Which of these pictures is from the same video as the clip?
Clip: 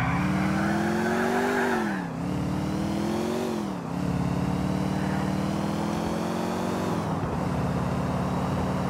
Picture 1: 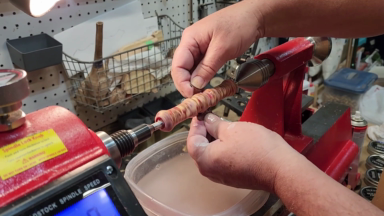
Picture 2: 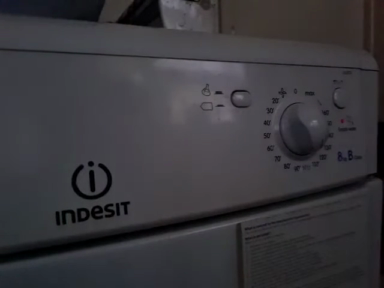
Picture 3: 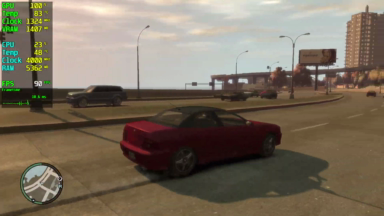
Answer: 3